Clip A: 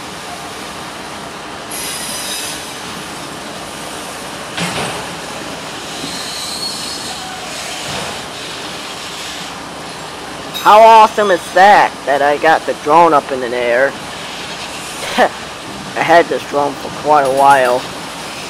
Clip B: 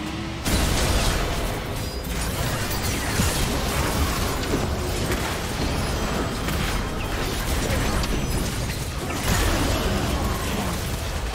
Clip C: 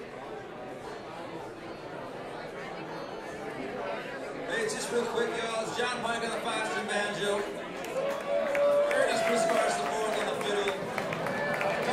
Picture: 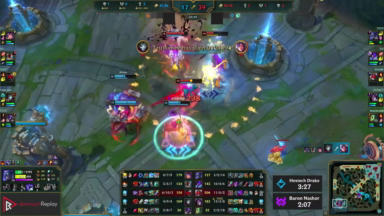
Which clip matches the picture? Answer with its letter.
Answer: B